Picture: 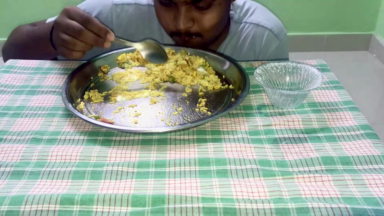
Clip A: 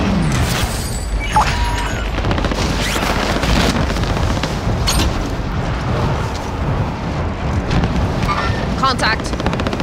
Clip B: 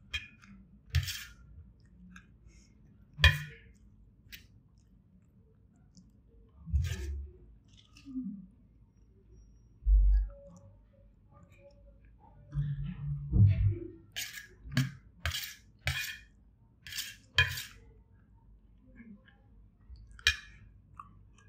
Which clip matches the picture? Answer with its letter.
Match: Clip B